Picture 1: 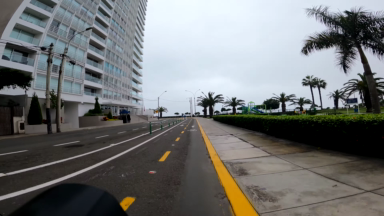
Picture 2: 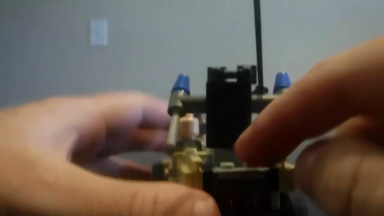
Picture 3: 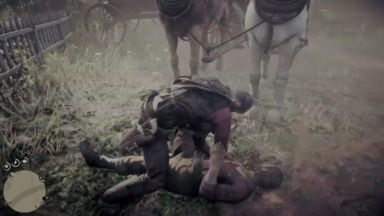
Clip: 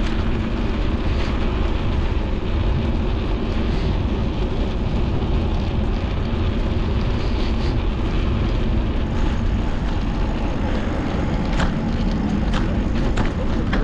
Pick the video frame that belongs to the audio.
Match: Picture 1